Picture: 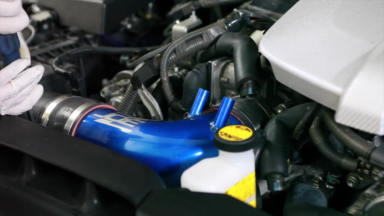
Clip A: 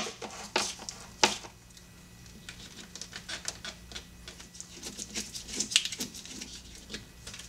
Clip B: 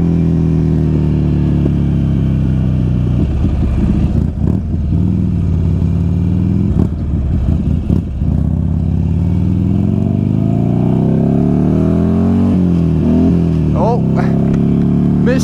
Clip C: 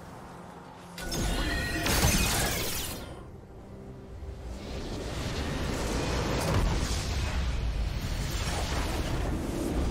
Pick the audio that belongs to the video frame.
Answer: A